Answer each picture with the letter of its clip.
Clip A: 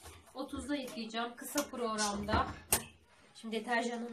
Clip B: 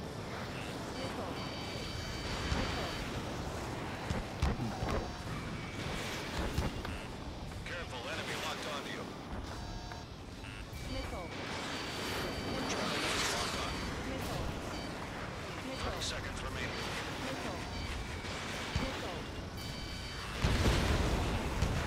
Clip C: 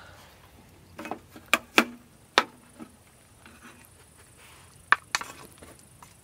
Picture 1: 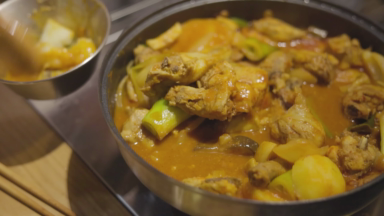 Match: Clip C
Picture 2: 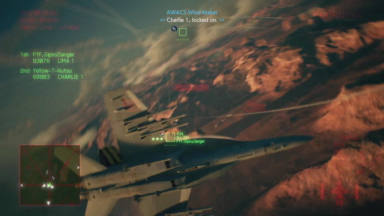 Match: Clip B